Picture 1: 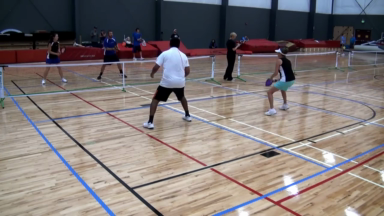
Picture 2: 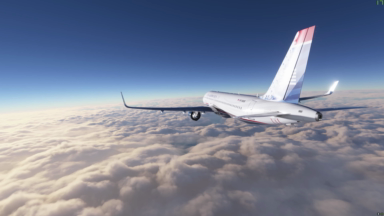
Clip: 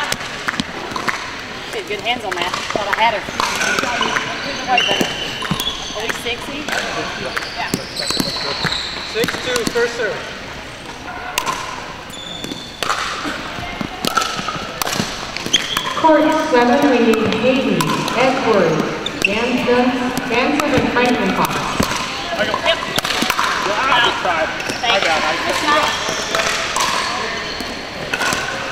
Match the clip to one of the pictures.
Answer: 1